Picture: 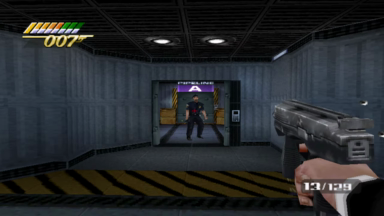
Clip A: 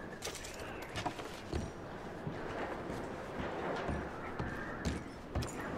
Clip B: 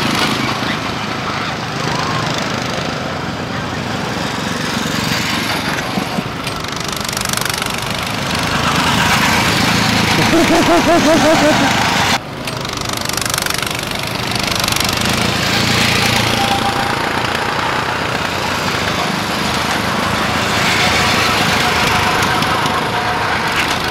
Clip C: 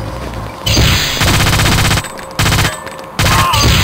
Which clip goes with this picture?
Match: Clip C